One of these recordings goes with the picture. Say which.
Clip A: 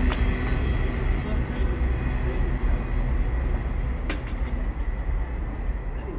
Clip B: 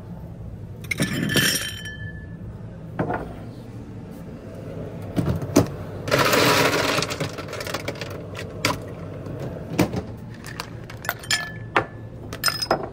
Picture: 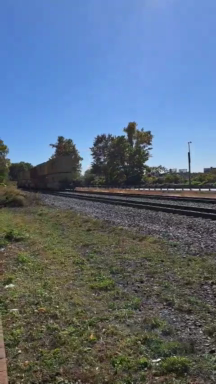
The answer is A